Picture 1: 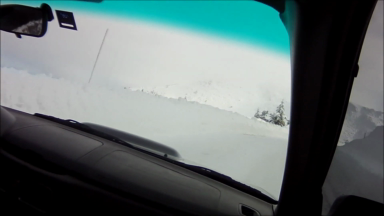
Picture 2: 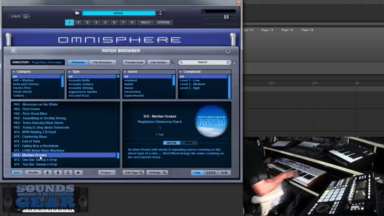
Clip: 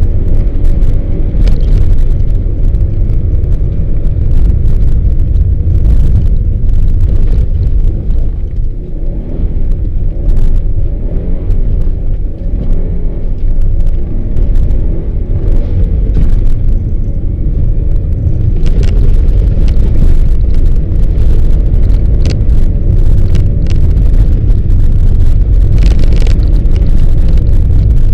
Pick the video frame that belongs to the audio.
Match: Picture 1